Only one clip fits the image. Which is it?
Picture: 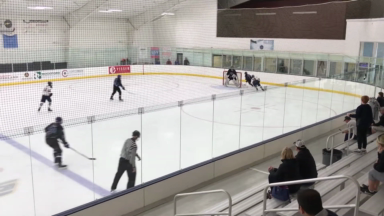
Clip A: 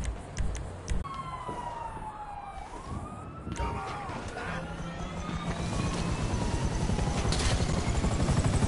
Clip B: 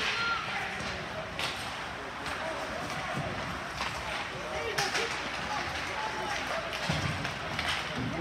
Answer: B